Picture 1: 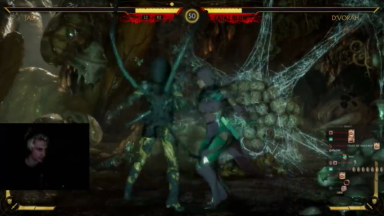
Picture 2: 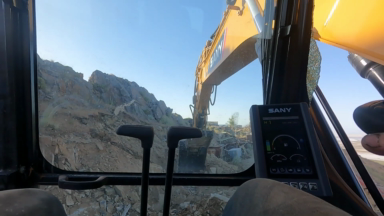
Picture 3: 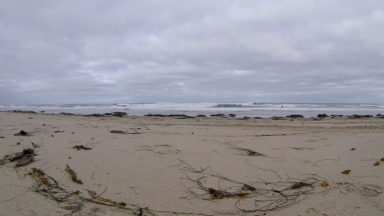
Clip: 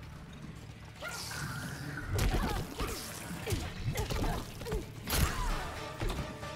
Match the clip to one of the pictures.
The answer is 1